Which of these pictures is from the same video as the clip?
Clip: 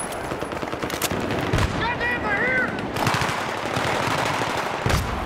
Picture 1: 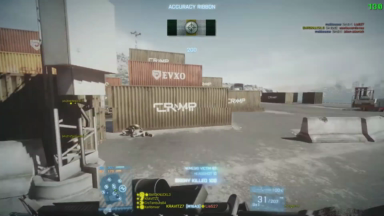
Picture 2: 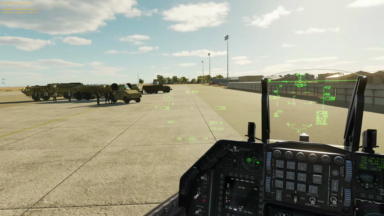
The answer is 1